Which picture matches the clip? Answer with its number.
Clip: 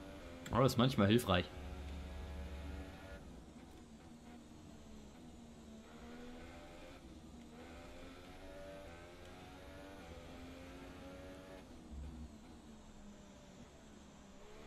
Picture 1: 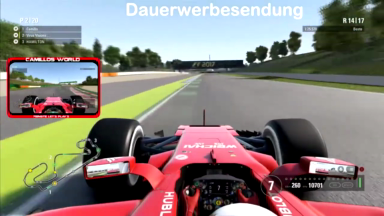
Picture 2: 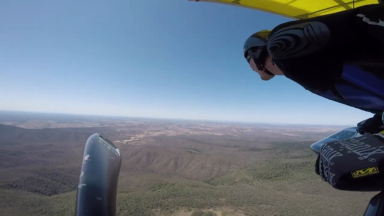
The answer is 1